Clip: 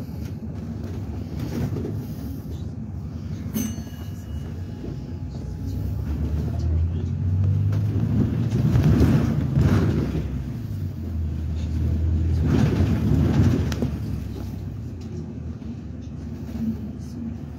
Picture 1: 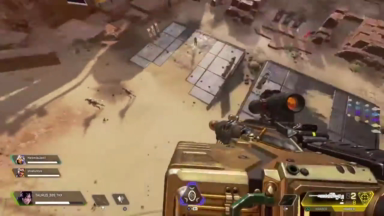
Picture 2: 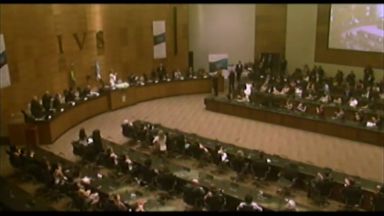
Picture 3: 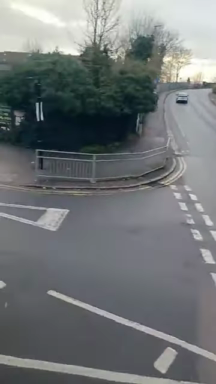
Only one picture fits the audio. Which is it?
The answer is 3